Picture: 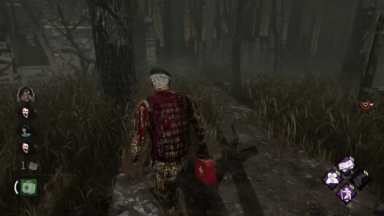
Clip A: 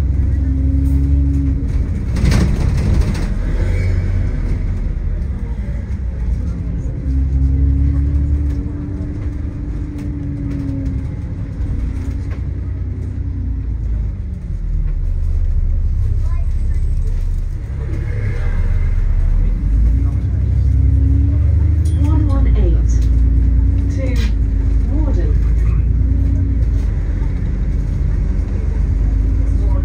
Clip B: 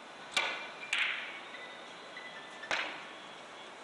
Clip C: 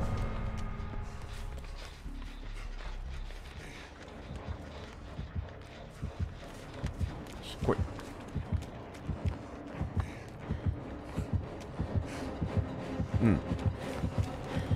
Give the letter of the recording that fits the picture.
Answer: C